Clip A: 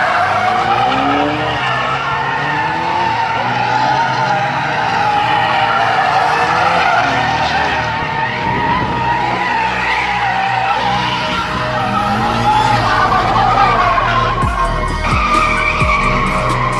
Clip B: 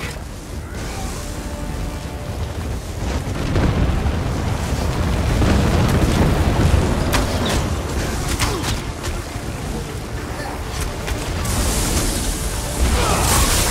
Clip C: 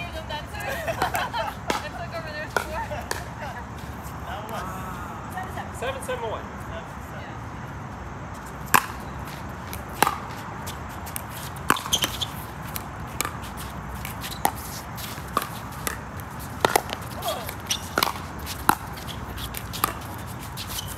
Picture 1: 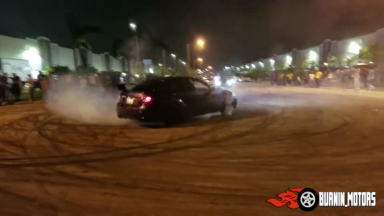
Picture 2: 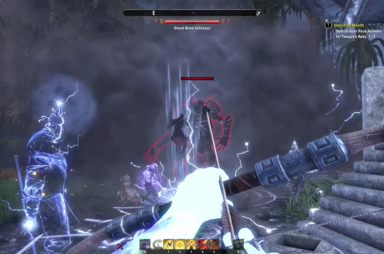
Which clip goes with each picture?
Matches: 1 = A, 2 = B